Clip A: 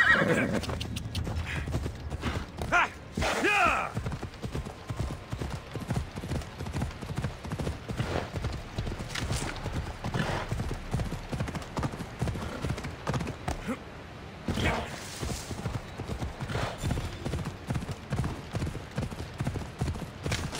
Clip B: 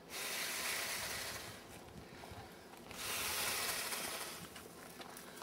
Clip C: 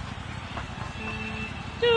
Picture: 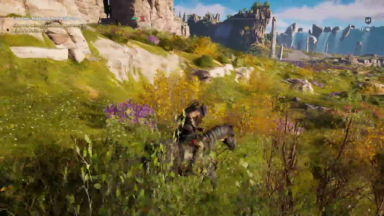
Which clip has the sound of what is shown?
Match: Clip A